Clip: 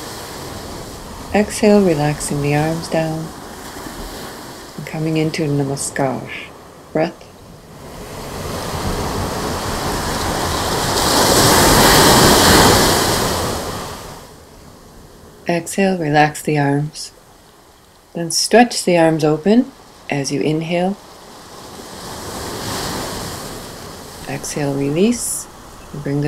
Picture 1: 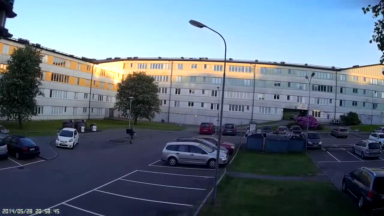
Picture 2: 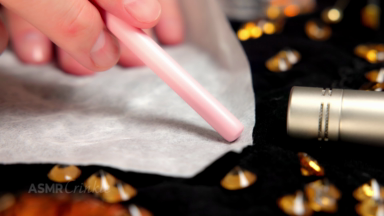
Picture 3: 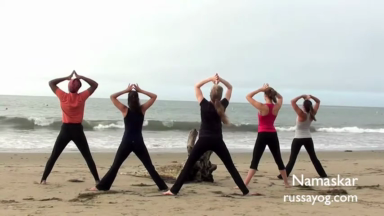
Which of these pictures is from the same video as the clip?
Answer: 3